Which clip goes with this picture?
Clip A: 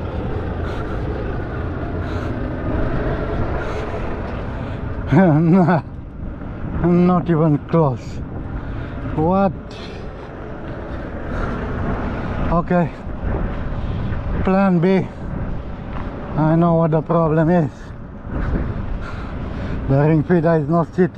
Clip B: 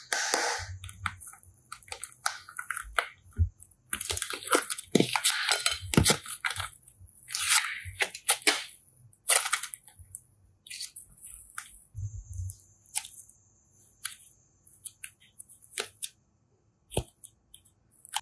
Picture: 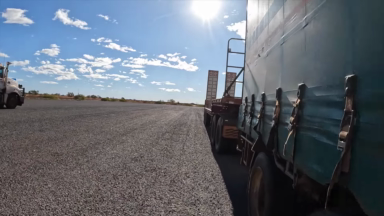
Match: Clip A